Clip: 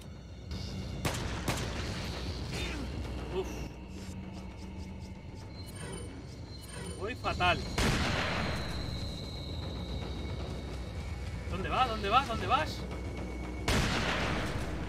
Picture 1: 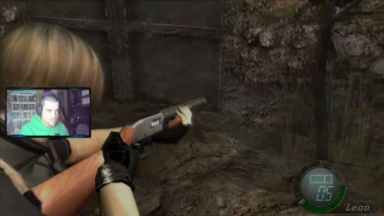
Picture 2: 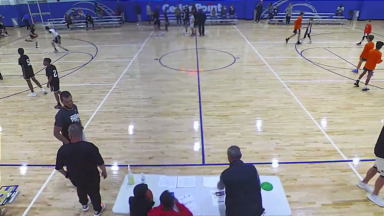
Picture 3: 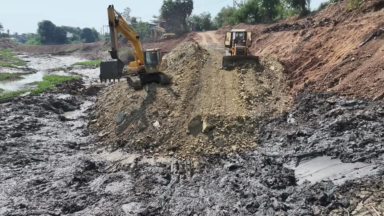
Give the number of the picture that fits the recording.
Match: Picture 1